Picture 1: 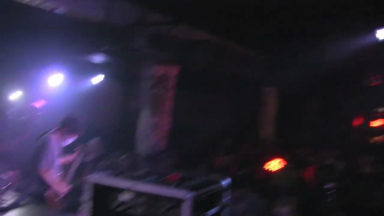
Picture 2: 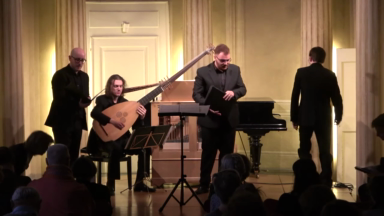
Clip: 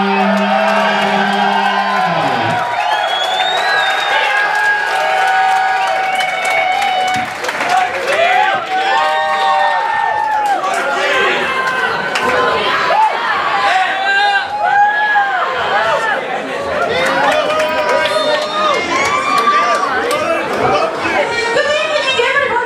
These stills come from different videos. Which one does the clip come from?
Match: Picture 1